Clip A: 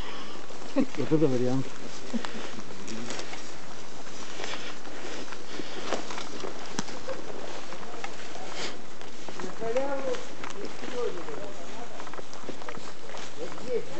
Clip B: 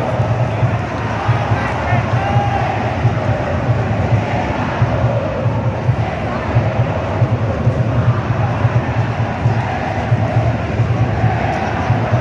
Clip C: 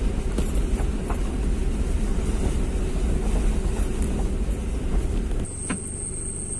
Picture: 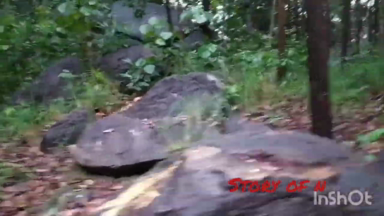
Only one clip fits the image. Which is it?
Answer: C